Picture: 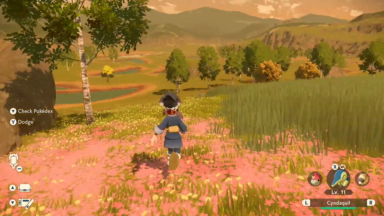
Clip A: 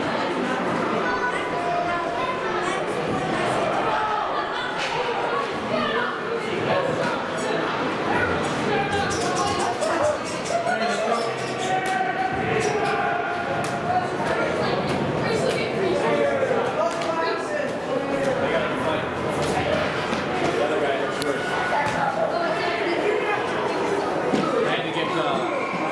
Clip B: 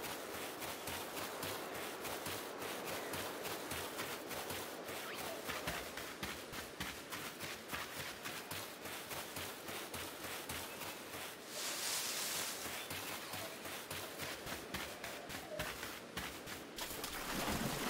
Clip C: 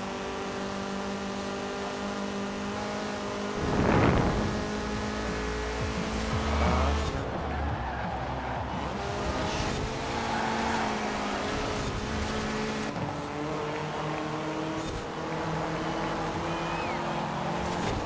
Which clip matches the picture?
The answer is B